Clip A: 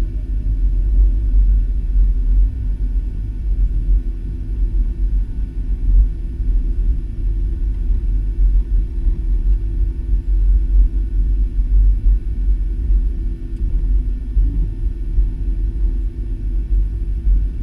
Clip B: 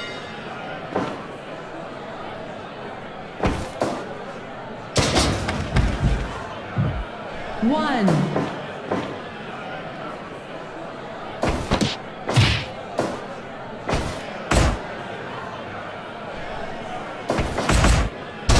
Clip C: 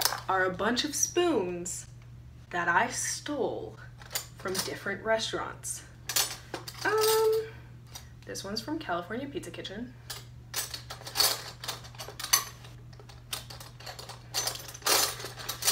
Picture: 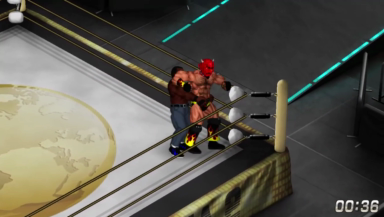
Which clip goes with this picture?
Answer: B